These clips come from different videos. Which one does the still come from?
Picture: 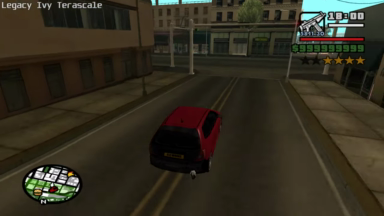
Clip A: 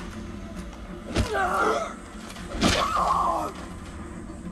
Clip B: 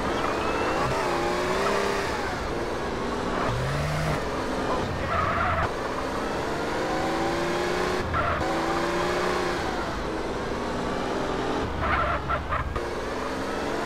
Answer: B